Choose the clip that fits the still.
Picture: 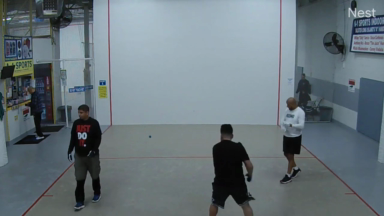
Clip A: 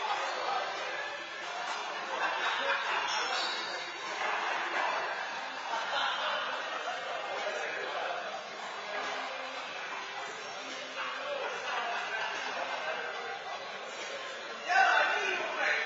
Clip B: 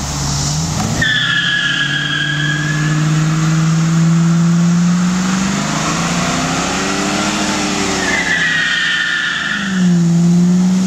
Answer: A